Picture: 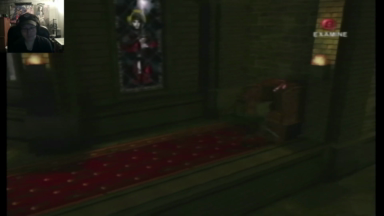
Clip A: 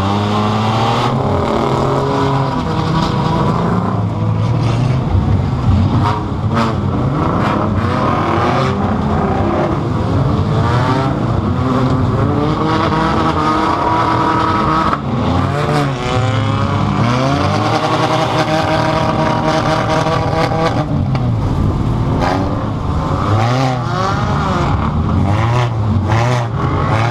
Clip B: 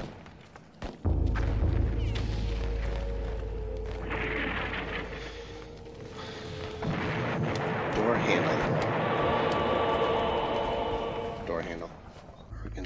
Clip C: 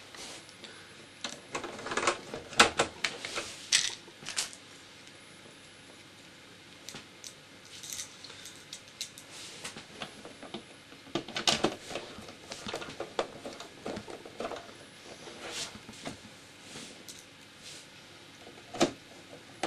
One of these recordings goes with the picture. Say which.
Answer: B